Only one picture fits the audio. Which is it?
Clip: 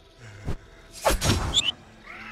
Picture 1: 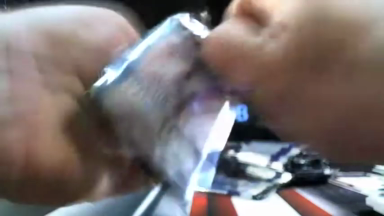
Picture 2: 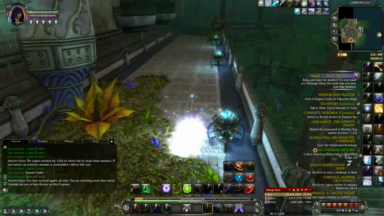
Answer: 2